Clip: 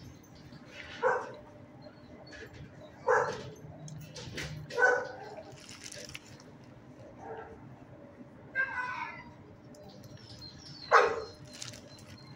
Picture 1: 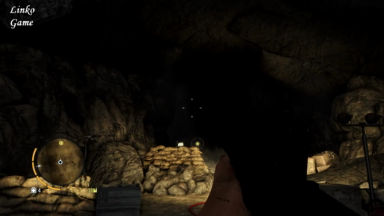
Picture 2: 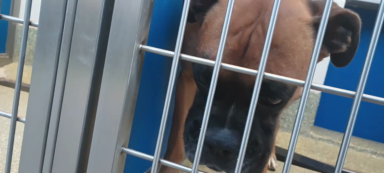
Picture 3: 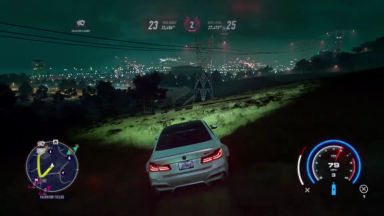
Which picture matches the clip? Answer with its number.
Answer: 2